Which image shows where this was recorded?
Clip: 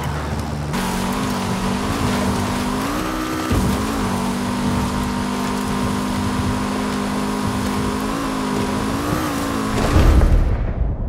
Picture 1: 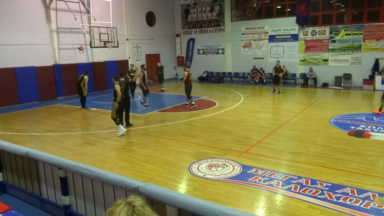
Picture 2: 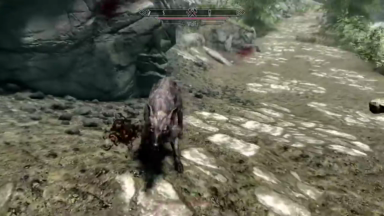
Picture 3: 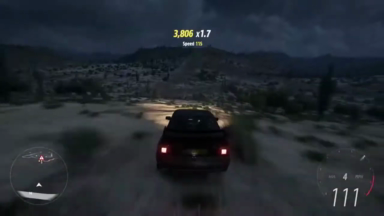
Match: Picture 3